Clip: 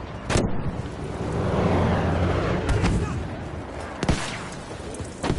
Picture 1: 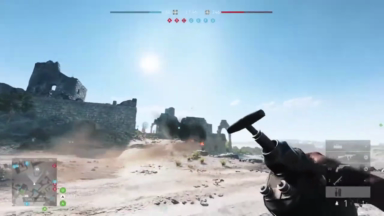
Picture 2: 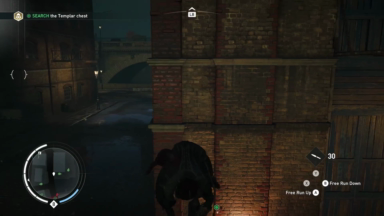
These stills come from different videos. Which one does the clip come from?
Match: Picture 1